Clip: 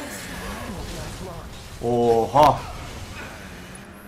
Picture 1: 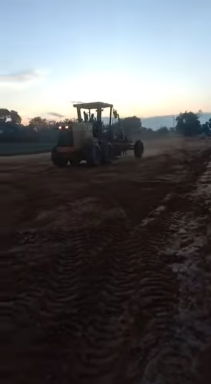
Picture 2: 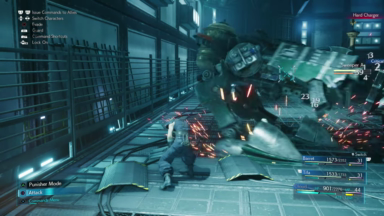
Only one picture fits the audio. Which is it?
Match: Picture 2